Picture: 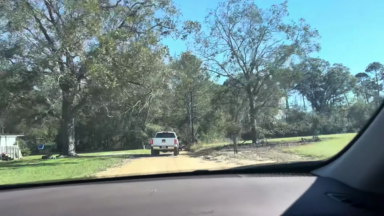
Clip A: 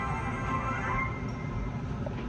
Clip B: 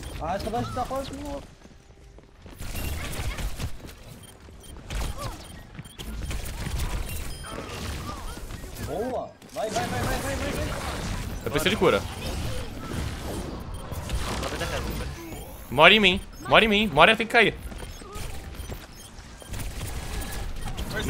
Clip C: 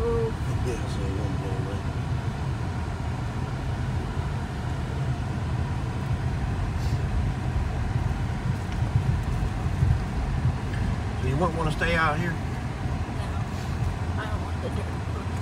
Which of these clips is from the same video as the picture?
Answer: C